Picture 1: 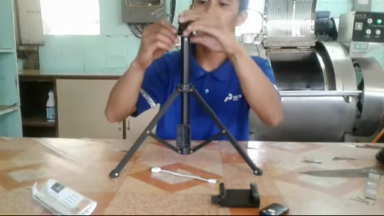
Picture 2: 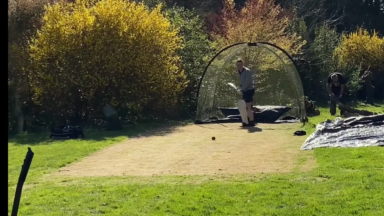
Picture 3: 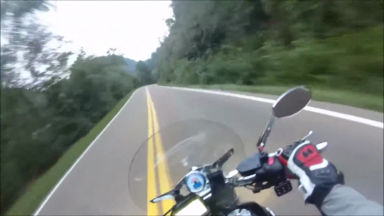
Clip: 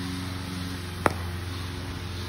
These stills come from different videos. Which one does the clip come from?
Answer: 2